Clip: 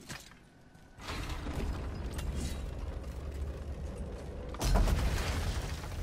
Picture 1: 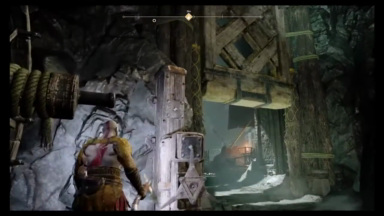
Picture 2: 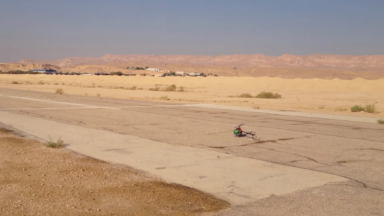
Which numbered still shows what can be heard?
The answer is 1